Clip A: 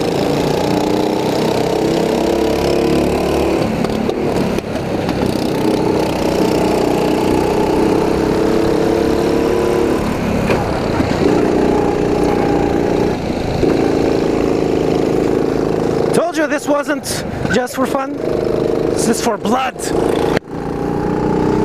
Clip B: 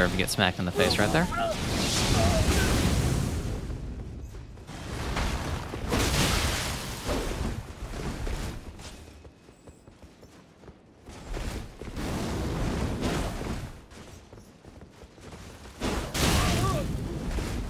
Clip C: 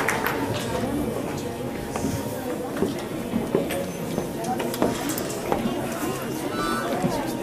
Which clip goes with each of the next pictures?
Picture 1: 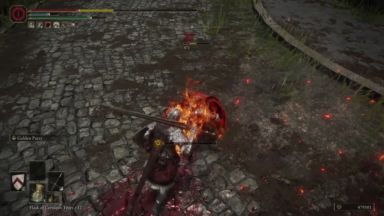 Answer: B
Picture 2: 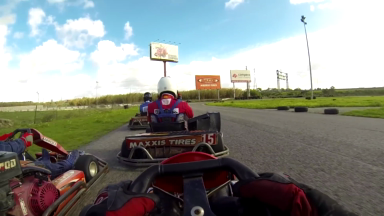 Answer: A